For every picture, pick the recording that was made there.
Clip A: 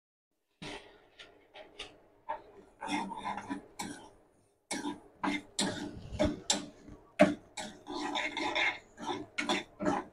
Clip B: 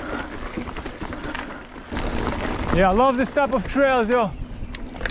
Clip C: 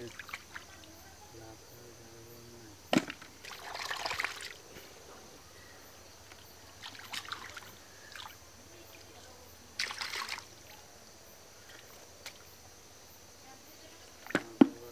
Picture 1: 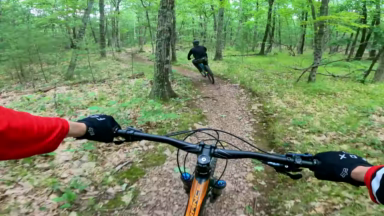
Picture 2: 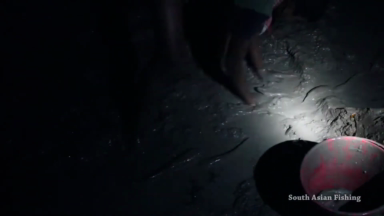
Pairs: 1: B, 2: C